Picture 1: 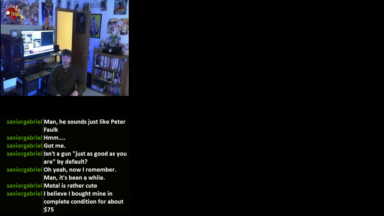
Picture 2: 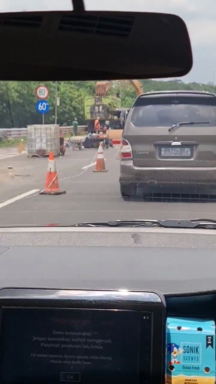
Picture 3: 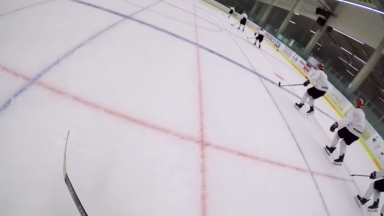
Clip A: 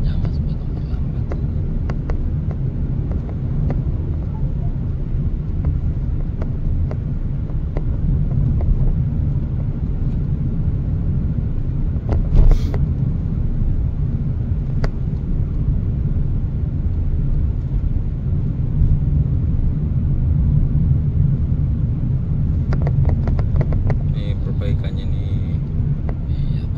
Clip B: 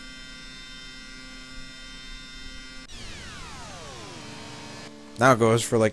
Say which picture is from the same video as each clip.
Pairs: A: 2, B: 1